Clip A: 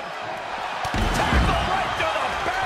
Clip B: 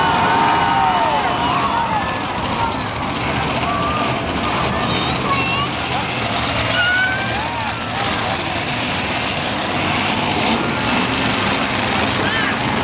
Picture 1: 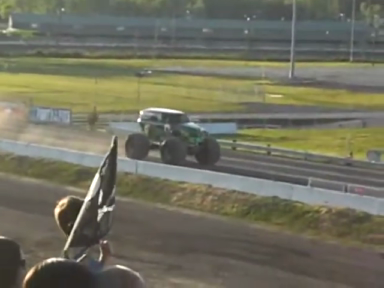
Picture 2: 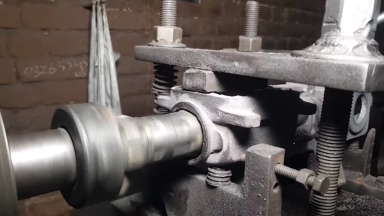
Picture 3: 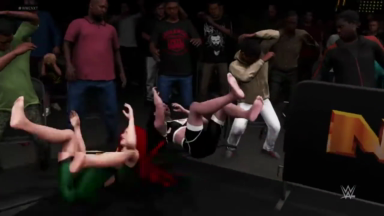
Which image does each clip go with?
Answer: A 3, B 1